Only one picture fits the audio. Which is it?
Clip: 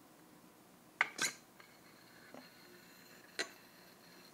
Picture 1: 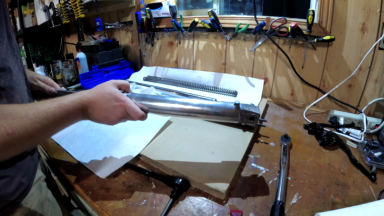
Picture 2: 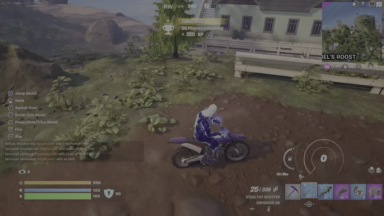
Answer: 1